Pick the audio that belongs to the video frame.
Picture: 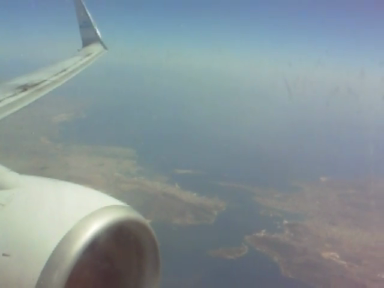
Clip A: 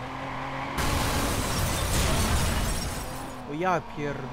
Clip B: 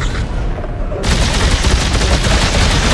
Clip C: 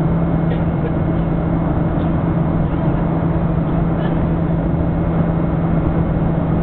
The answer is C